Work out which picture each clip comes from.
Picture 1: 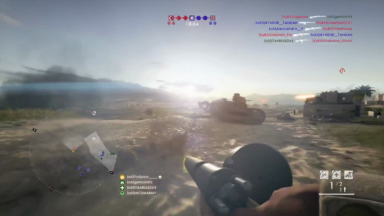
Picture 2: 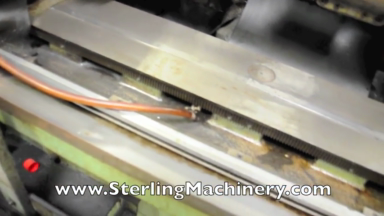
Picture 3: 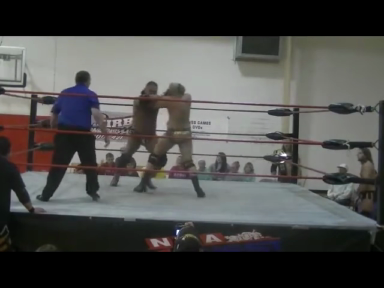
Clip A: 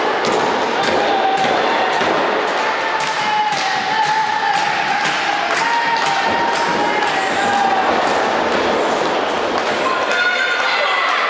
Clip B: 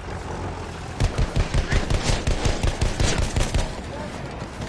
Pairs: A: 3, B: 1